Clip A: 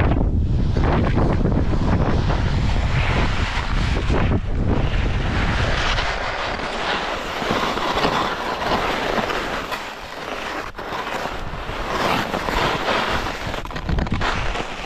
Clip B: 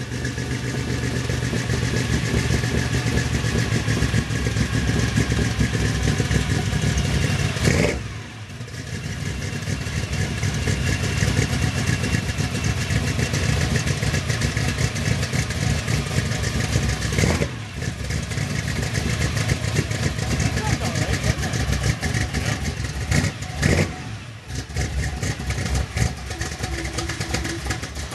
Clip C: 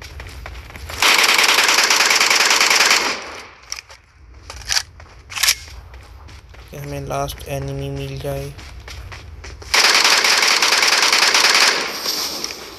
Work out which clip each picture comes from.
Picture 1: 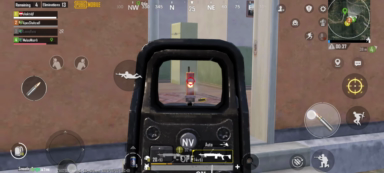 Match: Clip C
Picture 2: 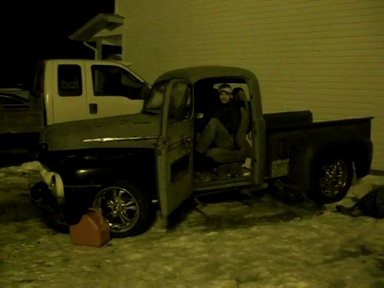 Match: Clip B